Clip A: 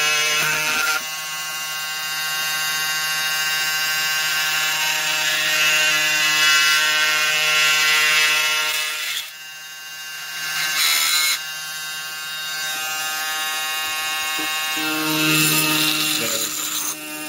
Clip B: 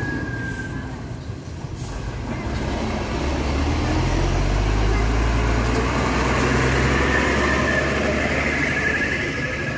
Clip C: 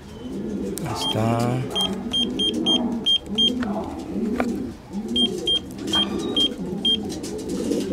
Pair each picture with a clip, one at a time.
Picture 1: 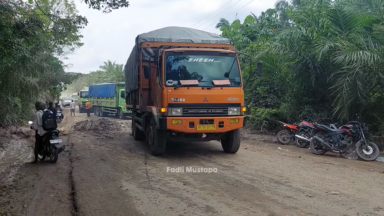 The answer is B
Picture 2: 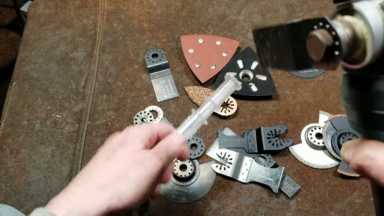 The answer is A